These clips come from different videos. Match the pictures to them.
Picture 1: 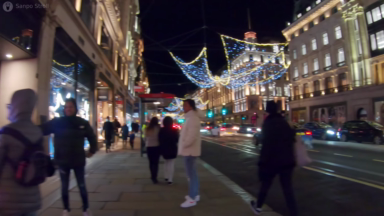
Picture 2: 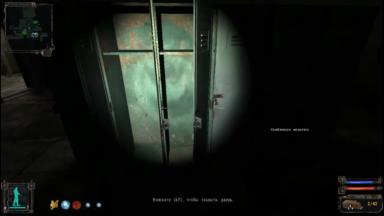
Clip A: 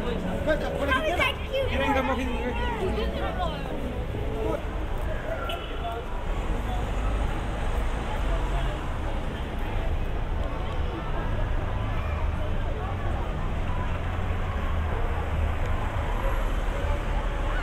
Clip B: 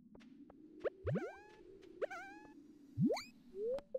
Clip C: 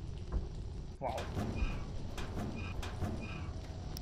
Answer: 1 A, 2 C